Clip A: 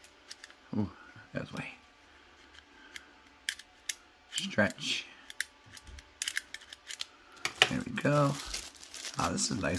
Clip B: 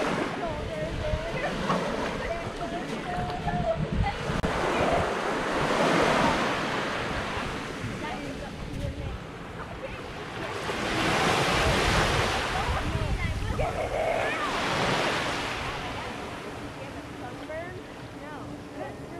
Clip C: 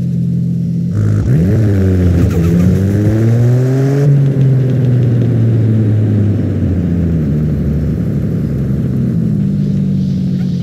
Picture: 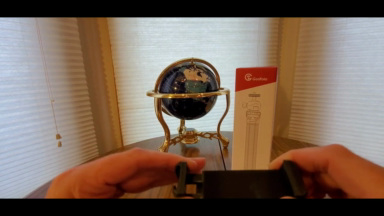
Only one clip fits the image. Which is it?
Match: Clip A